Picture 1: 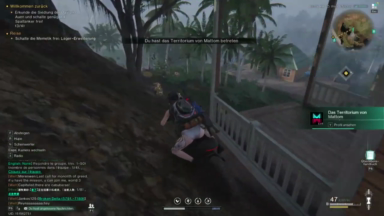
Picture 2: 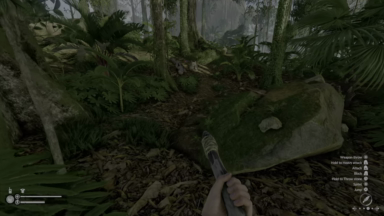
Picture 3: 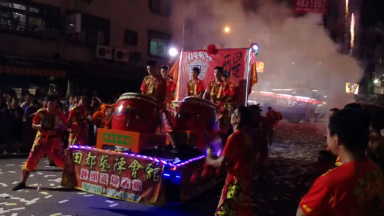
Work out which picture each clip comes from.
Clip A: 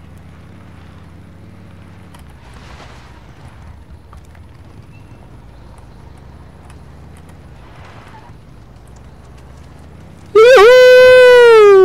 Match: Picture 1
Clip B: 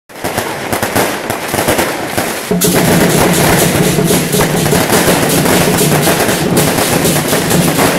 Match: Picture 3